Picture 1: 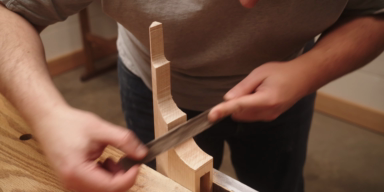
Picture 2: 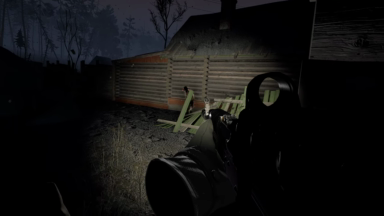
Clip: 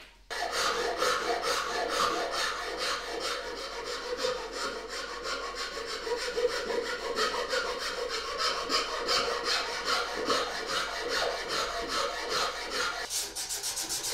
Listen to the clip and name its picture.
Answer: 1